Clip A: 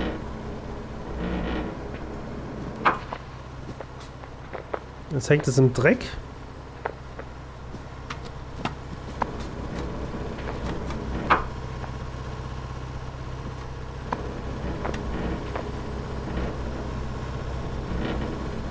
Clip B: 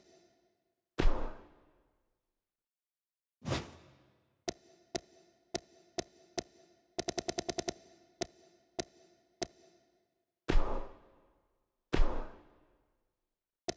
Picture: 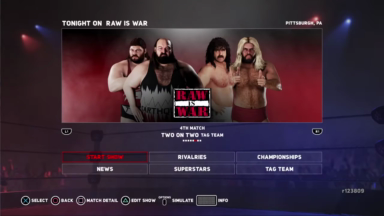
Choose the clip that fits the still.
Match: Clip B